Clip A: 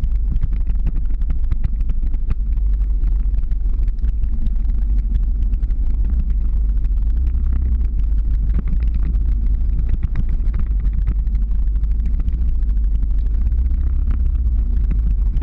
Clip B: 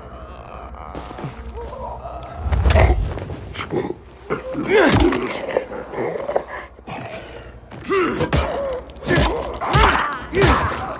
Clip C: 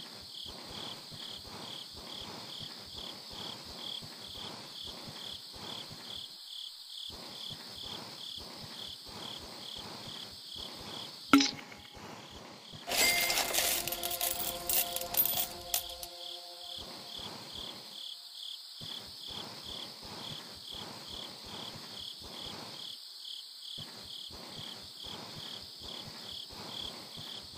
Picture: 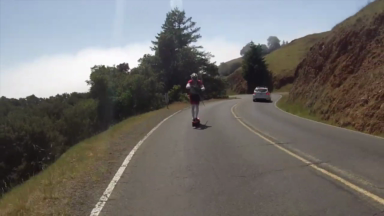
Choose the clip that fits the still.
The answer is A